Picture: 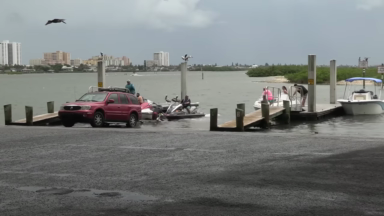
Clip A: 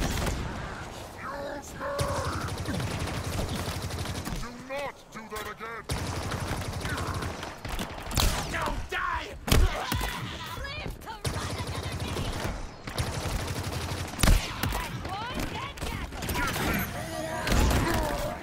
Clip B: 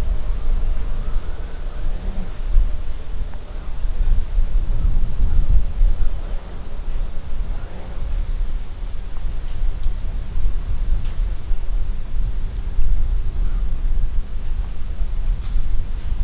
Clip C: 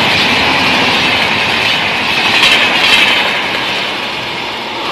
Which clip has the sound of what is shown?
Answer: B